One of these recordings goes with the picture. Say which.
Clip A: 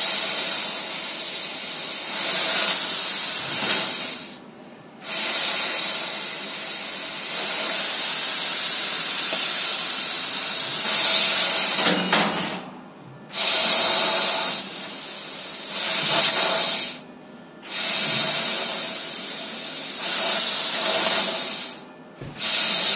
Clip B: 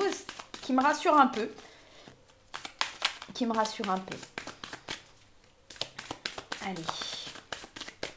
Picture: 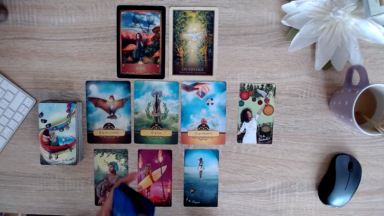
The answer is B